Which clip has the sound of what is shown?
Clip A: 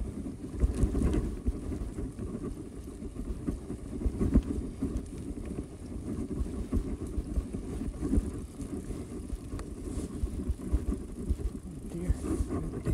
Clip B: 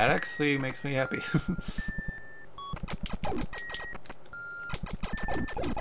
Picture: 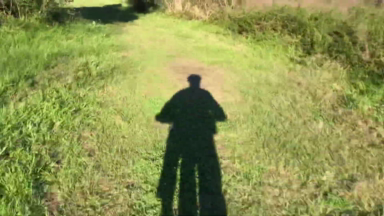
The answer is A